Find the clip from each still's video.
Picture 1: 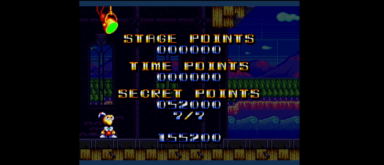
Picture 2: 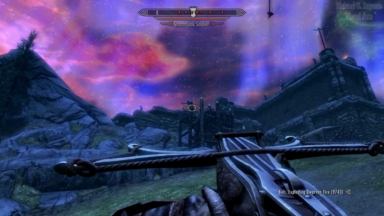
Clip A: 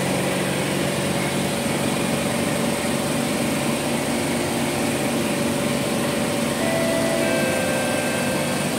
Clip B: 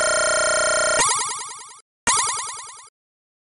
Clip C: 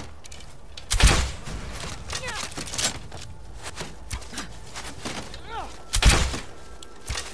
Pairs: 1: B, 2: C